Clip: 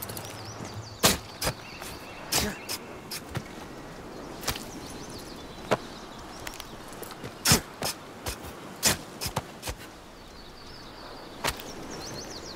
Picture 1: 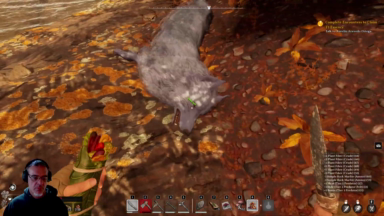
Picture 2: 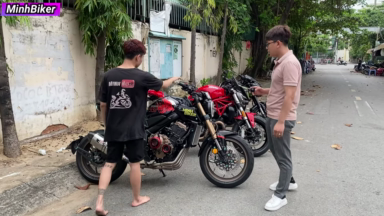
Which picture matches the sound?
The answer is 1